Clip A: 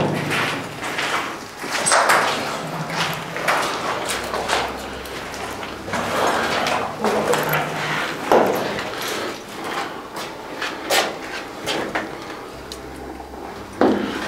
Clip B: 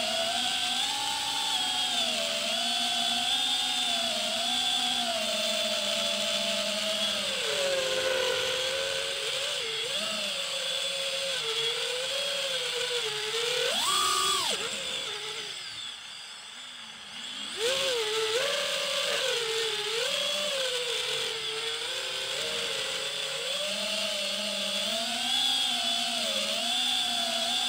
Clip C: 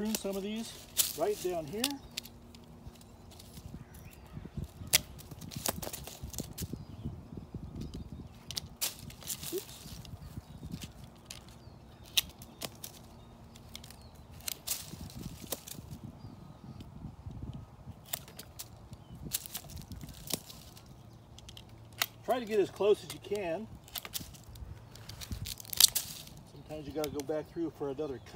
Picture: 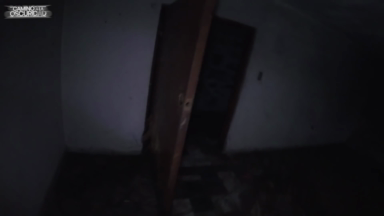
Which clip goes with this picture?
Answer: A